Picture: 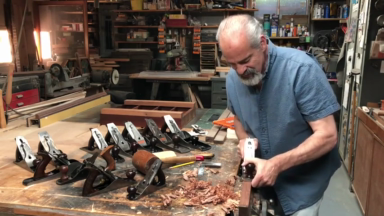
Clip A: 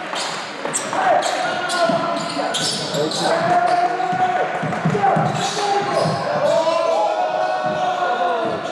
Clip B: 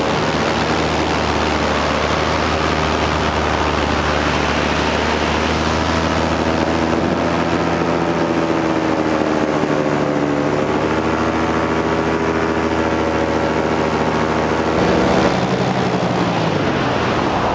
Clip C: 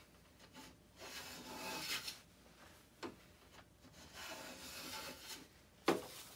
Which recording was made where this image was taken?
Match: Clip C